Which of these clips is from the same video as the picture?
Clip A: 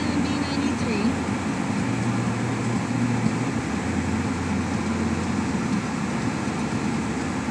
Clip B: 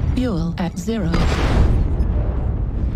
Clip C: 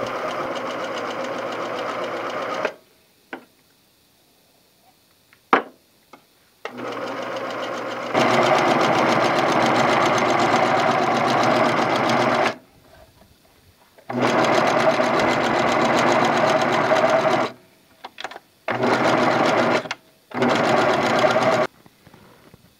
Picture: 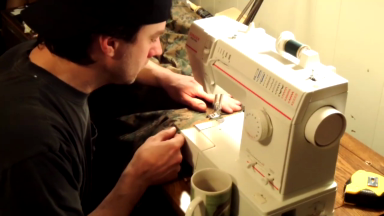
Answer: C